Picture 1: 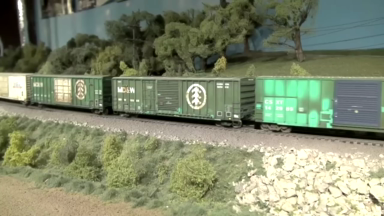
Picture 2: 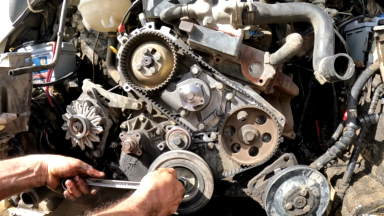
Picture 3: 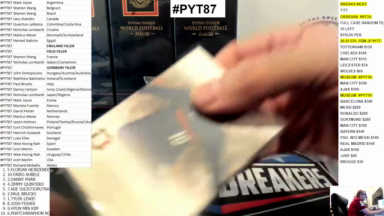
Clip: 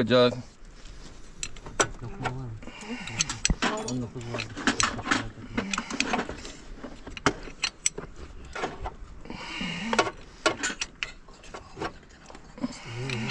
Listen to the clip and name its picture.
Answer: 2